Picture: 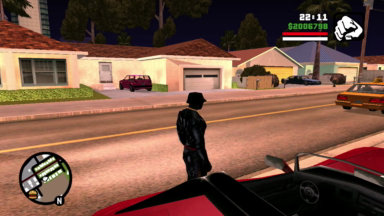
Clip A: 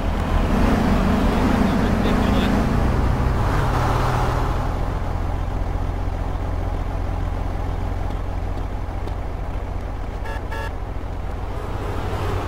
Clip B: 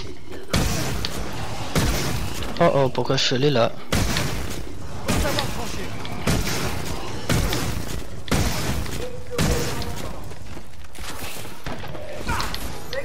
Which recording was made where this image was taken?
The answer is A